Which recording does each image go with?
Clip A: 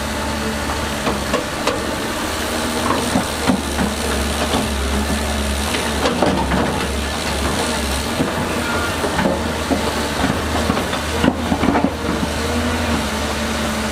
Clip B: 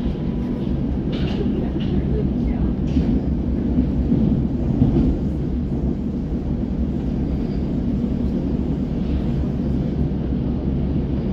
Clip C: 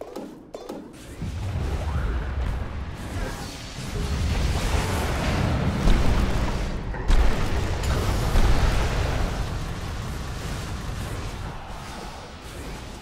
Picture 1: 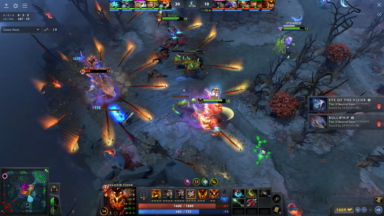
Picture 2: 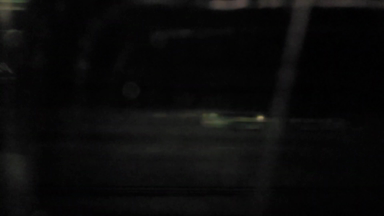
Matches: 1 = C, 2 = B